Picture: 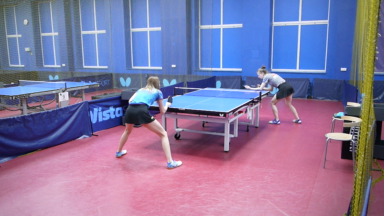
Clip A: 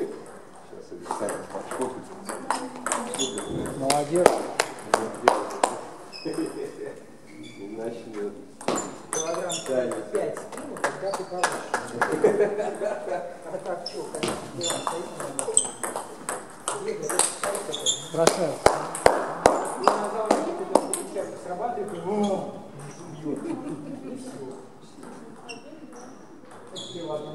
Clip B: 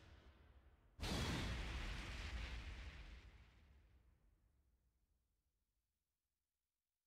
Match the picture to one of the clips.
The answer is A